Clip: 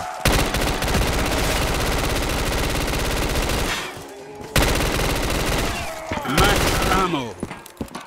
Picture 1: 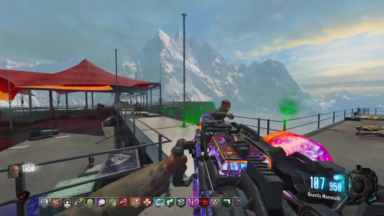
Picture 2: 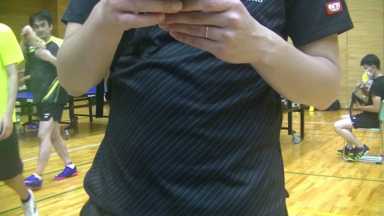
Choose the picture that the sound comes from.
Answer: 1